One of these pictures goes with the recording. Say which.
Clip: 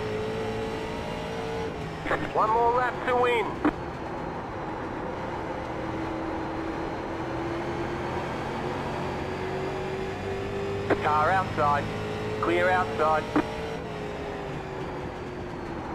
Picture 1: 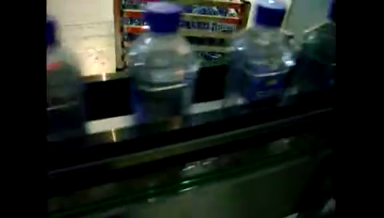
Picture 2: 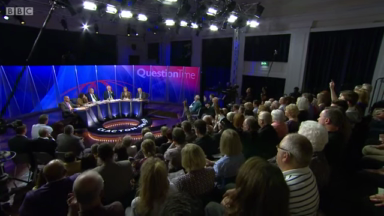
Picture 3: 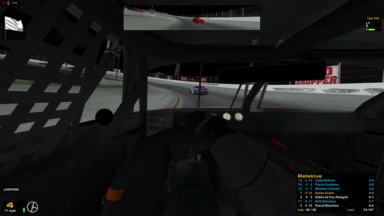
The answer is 3